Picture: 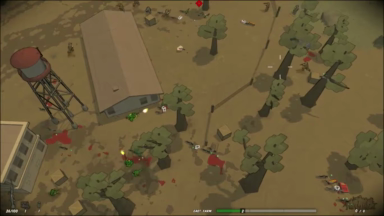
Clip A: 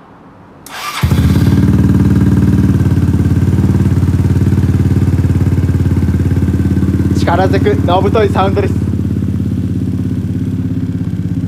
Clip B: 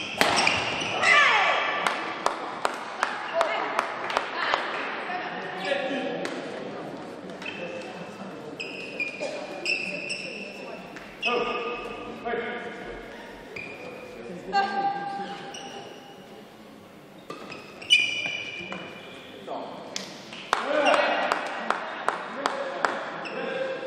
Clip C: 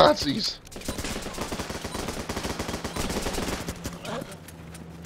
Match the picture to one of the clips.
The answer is C